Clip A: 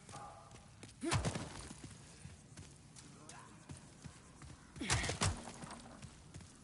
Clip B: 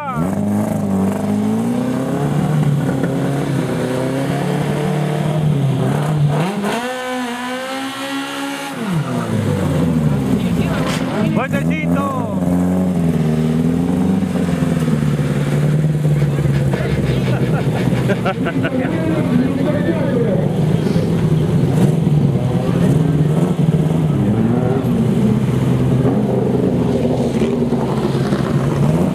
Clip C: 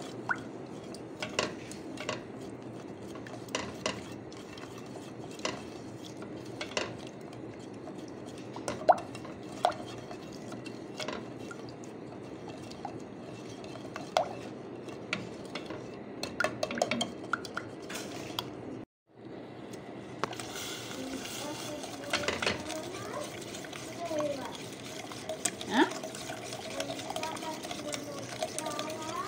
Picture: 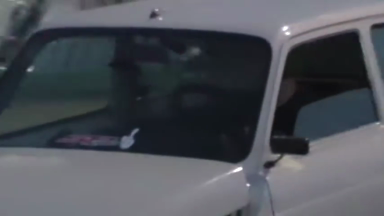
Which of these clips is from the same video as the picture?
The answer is B